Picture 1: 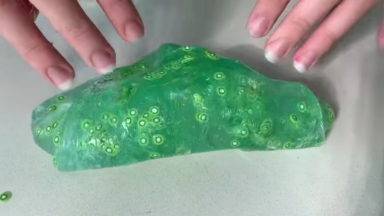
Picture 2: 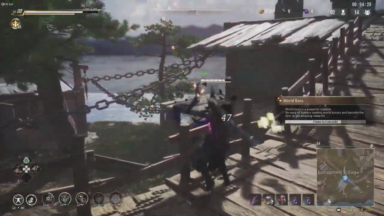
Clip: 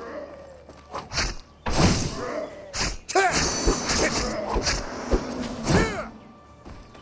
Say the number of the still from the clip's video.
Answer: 2